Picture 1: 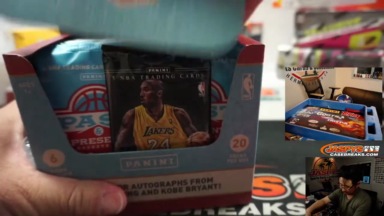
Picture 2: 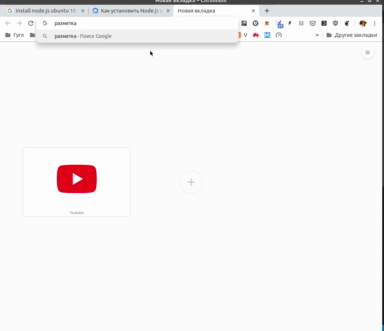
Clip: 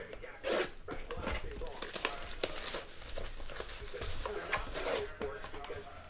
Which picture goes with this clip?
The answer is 1